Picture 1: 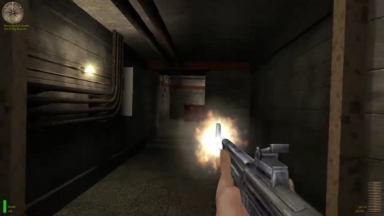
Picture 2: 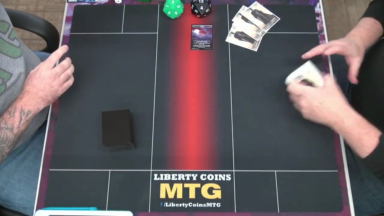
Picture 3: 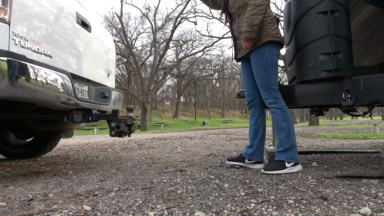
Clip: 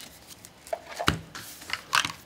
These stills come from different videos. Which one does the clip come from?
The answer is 2